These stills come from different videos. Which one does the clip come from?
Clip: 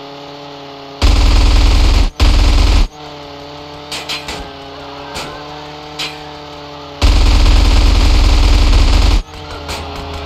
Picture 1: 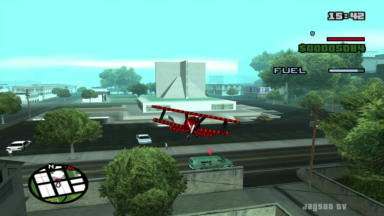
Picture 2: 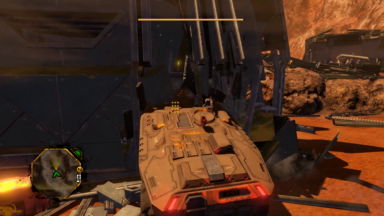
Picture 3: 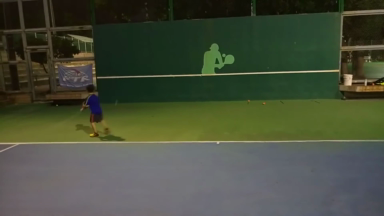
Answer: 1